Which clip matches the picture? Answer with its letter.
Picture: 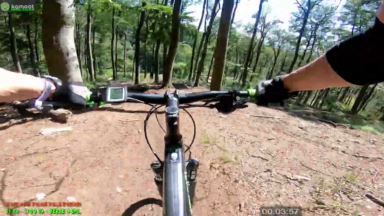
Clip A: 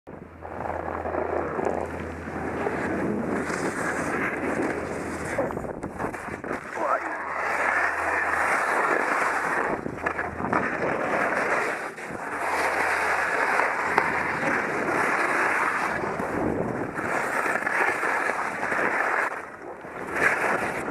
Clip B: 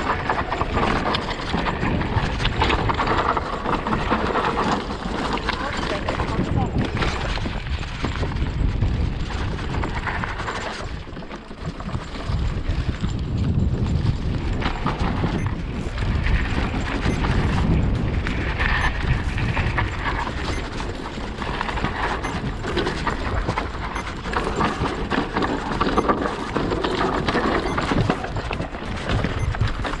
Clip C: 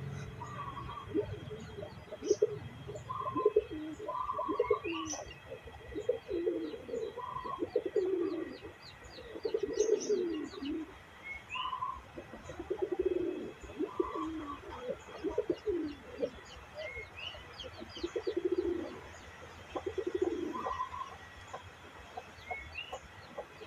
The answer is B